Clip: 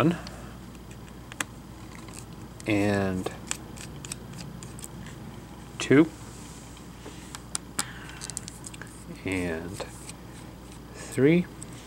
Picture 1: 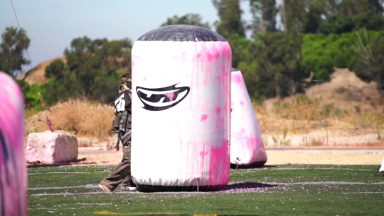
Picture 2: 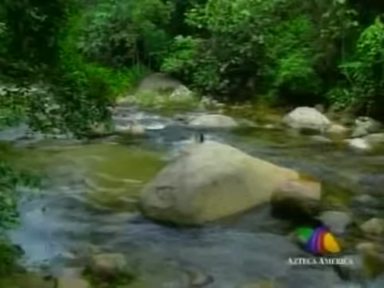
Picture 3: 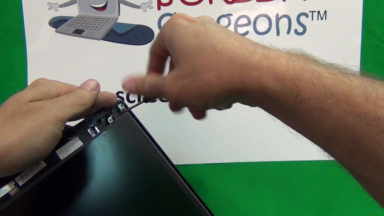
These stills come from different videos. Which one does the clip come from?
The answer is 3